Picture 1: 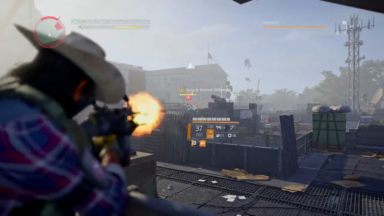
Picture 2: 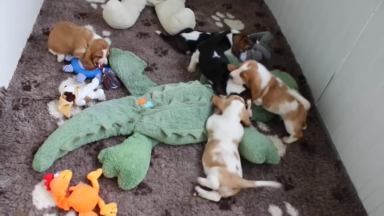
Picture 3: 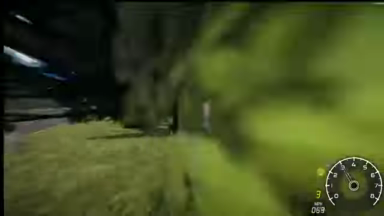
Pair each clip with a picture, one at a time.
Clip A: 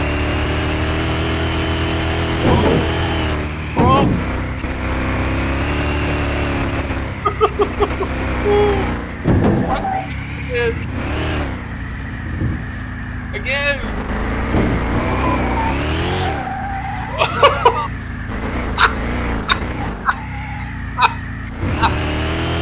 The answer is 3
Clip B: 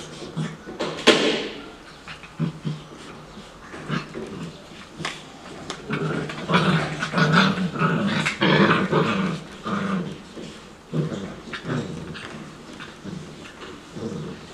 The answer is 2